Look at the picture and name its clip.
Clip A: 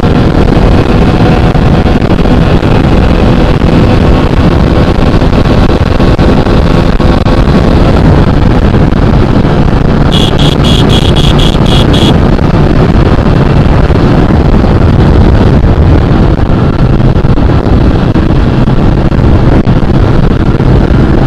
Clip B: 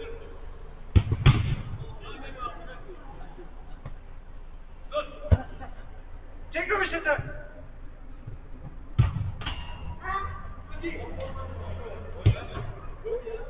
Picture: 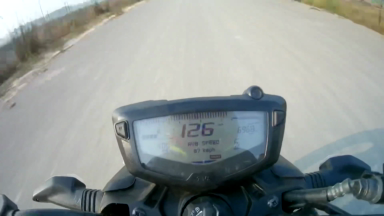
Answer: A